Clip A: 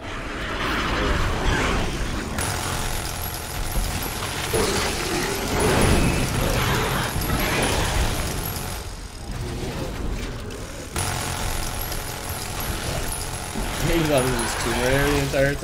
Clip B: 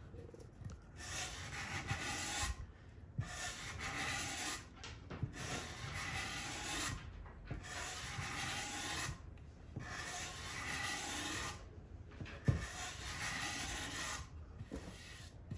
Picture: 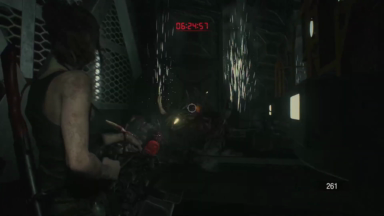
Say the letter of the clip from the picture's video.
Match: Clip A